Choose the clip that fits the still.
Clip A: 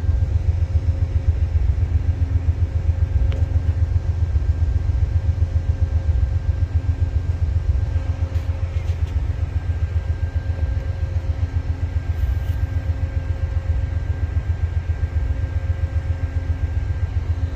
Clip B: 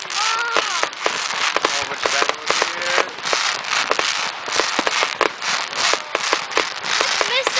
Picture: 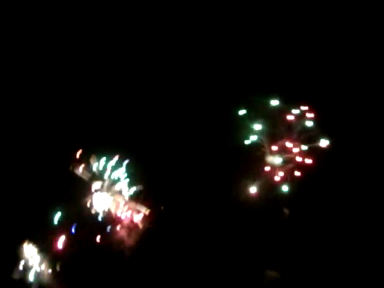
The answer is B